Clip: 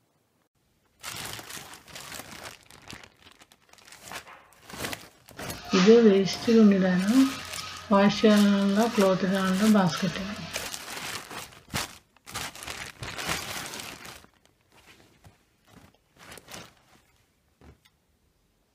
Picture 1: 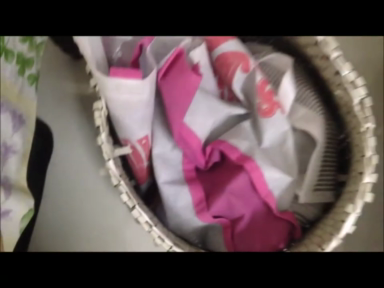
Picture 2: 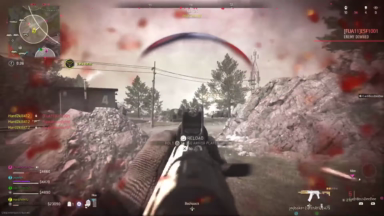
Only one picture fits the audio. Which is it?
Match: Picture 1